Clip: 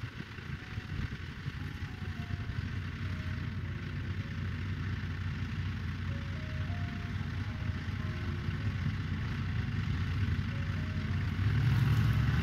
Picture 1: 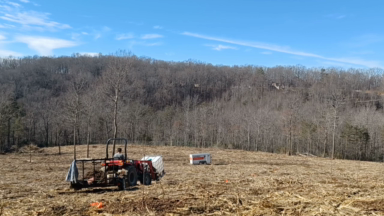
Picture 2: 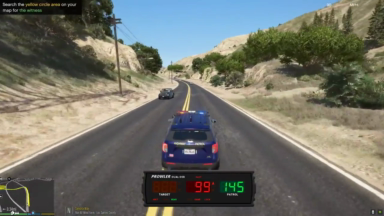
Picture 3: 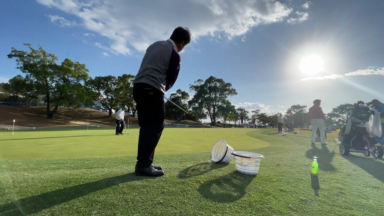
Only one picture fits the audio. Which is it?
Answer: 1